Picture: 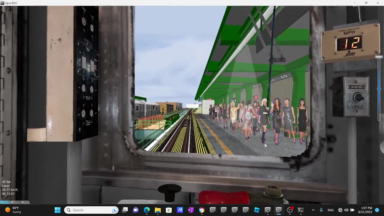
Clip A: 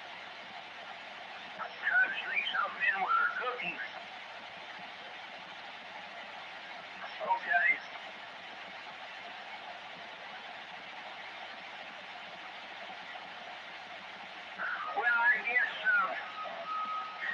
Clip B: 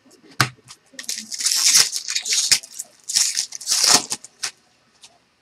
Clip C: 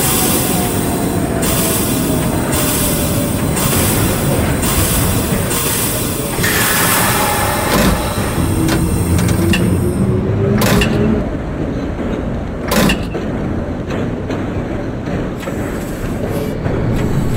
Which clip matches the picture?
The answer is C